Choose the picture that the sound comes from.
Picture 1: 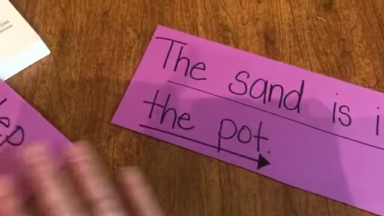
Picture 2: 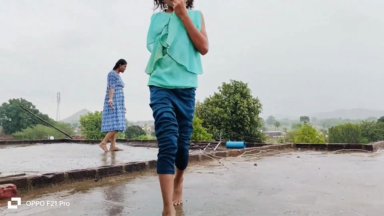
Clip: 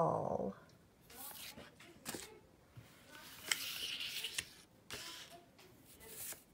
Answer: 1